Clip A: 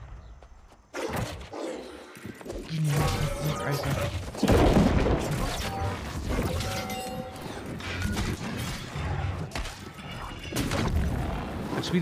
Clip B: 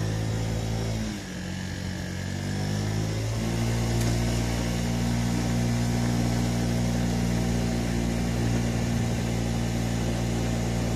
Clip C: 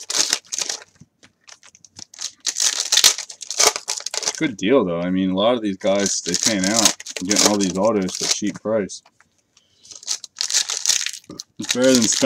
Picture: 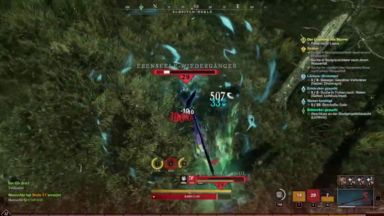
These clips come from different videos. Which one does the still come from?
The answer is A